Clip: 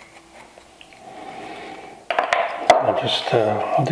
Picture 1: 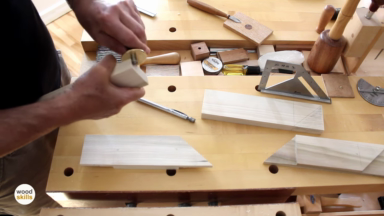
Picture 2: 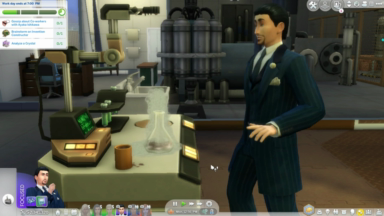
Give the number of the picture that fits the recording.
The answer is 1